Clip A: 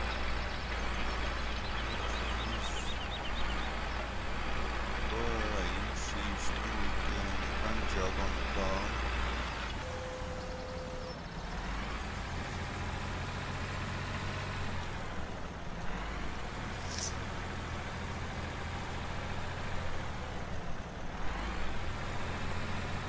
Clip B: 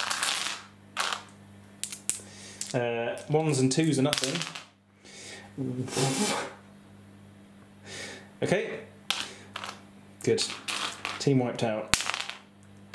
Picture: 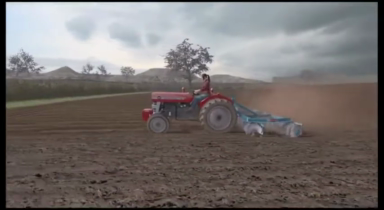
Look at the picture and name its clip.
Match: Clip A